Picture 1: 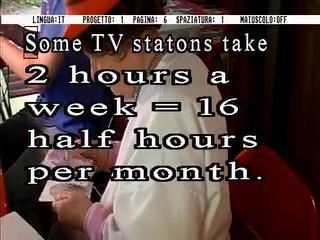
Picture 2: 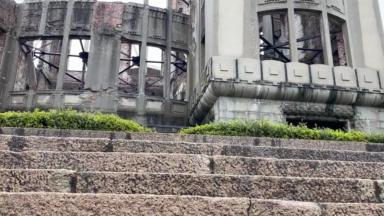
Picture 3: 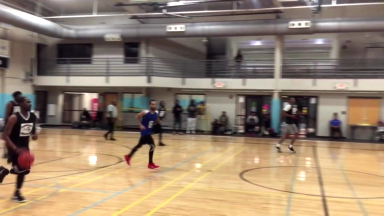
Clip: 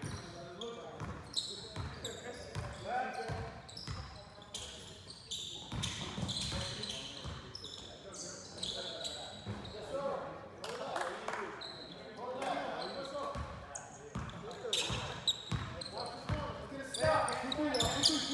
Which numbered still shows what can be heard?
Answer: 3